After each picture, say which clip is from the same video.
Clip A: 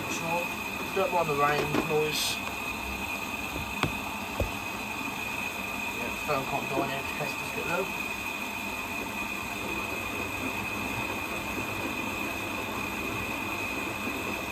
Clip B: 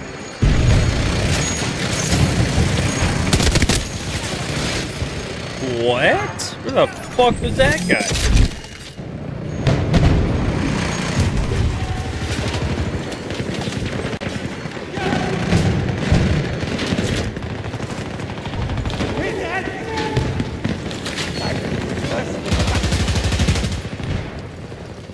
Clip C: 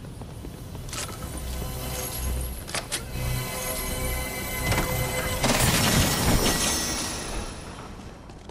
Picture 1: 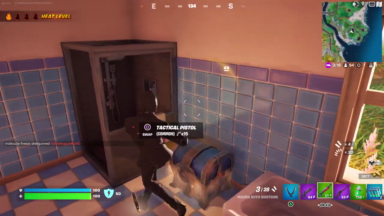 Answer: C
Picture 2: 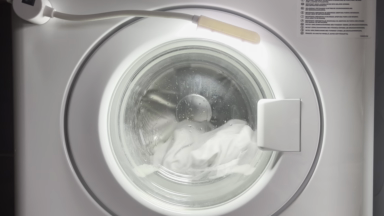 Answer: A